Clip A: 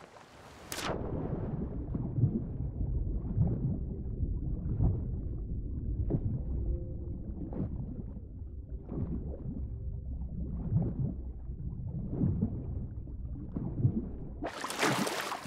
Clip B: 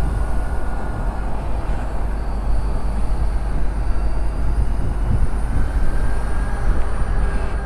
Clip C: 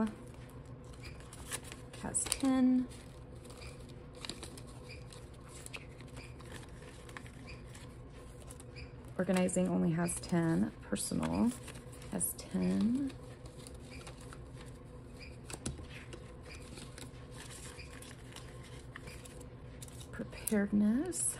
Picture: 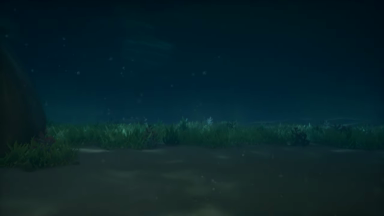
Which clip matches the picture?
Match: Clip A